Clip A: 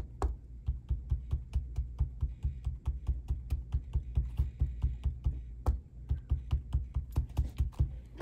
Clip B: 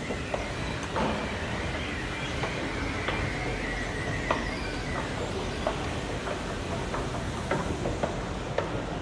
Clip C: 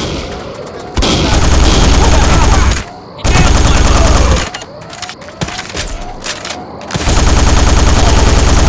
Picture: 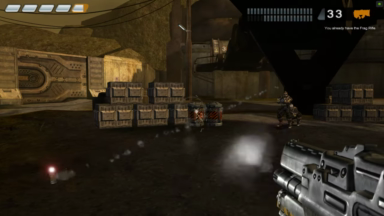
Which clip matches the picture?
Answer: C